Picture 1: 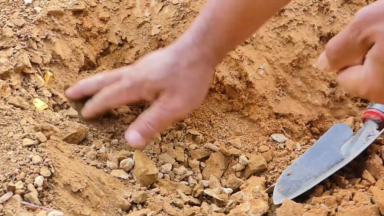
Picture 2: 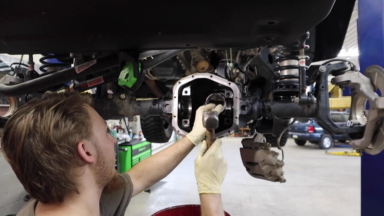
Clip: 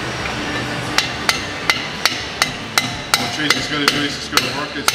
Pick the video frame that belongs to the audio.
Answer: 2